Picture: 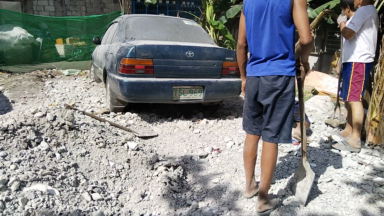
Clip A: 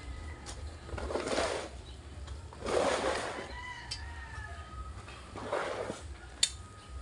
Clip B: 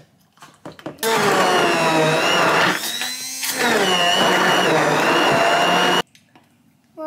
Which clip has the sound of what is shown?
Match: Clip A